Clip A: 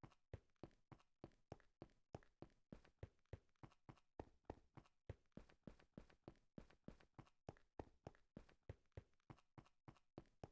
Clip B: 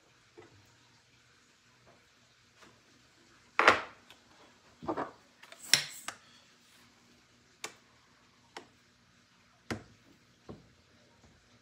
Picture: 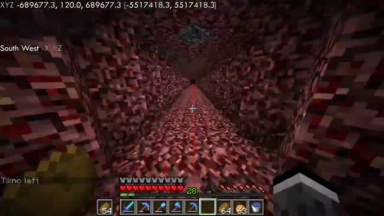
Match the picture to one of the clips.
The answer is A